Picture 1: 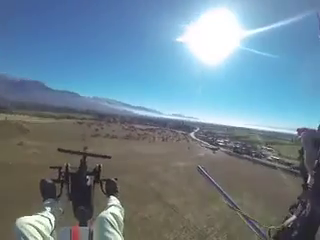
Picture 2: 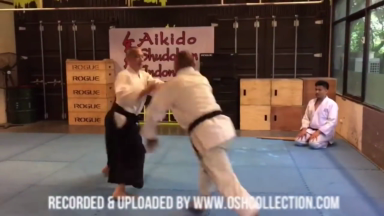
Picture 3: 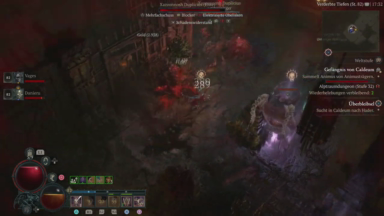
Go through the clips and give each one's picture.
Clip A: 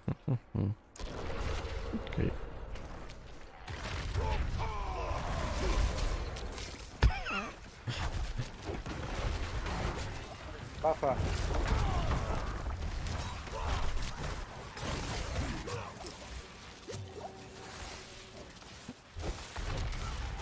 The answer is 3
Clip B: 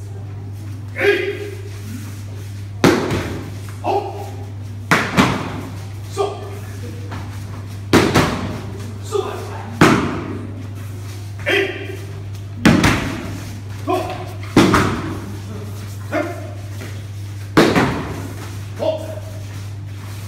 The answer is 2